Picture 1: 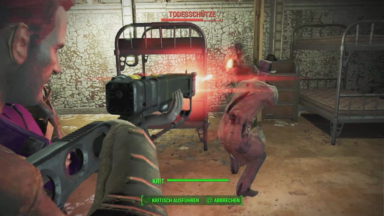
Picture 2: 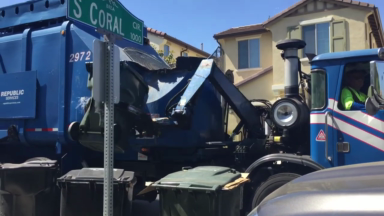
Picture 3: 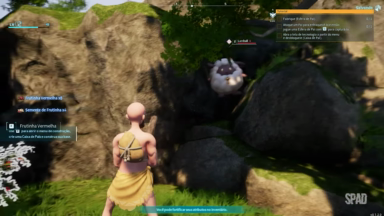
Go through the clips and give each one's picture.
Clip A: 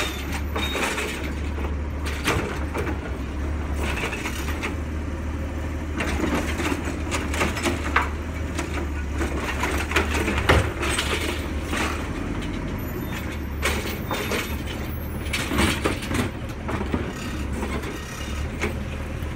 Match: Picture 2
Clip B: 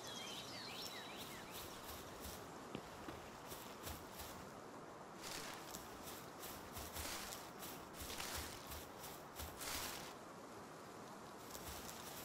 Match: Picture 3